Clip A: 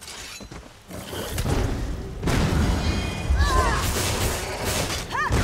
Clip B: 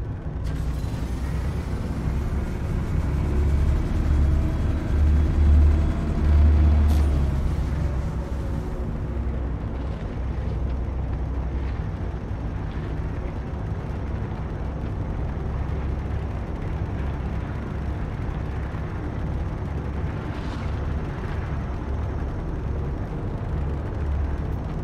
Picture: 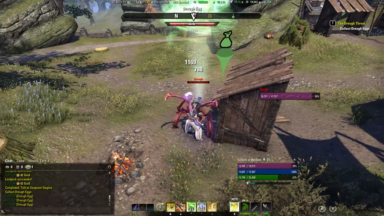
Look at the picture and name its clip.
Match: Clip A